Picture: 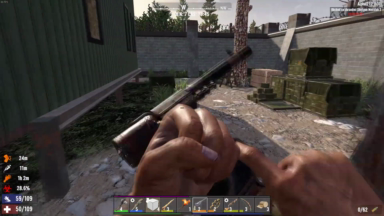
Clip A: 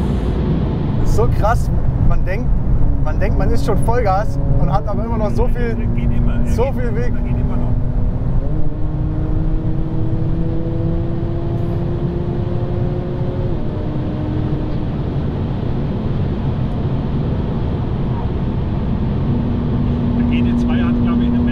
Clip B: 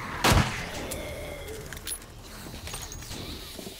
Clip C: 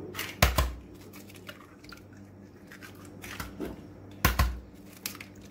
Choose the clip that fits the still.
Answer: B